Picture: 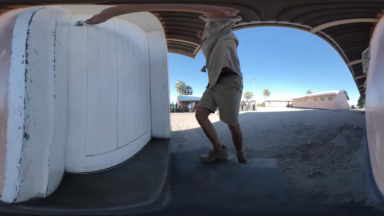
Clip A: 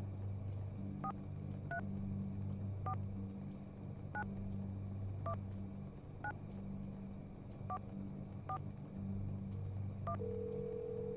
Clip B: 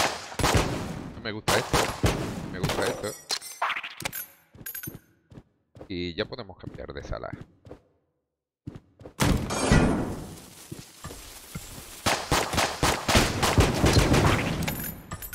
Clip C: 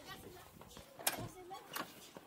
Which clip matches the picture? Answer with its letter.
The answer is C